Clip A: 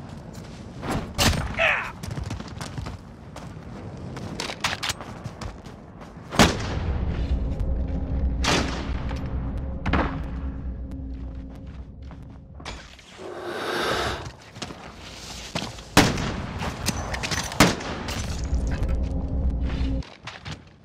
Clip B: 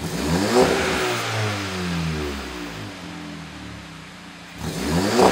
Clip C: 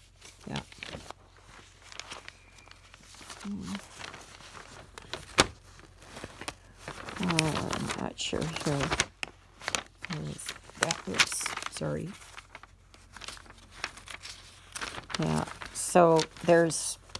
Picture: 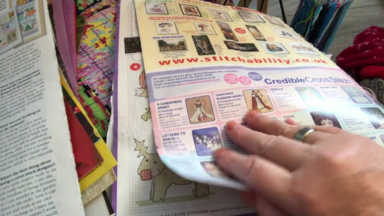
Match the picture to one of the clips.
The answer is C